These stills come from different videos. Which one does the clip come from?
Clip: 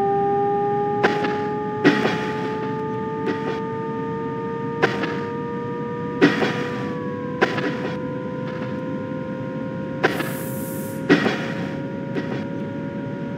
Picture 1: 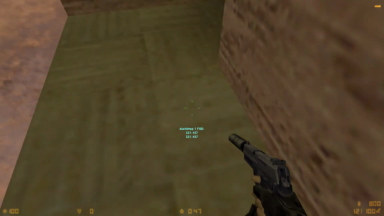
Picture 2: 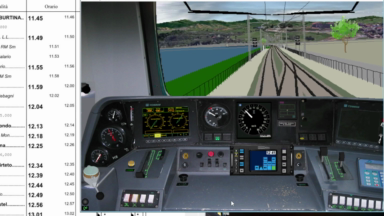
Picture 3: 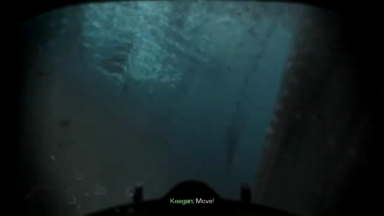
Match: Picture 2